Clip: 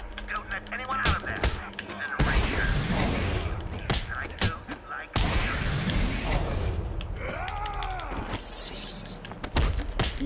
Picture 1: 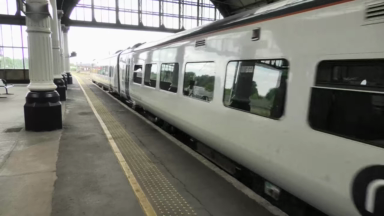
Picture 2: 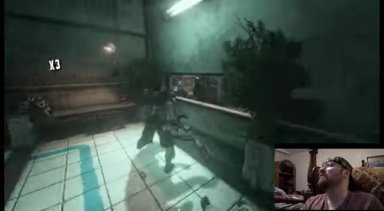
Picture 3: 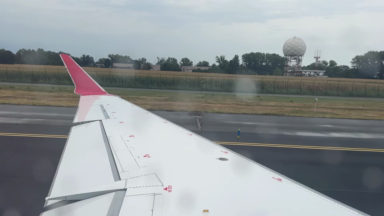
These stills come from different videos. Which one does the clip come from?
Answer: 2